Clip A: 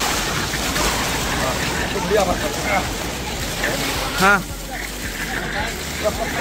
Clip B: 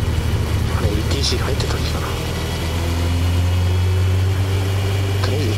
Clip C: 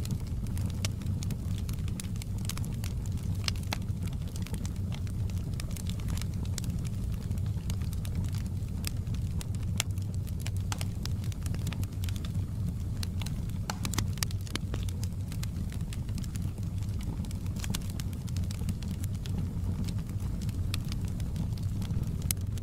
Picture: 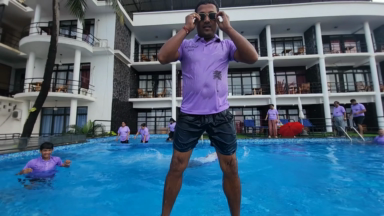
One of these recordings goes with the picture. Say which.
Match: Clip A